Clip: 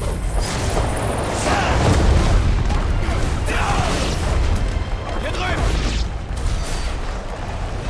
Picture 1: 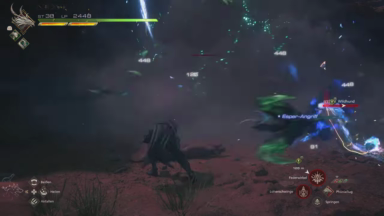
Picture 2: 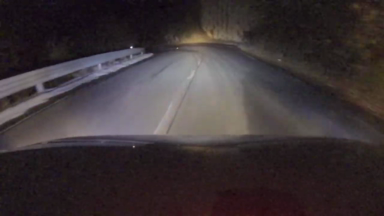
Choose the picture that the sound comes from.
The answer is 1